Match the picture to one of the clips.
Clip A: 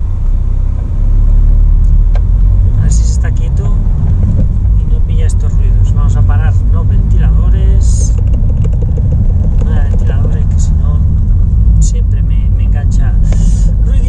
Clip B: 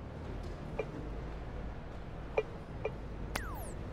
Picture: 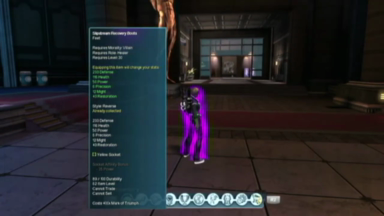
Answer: B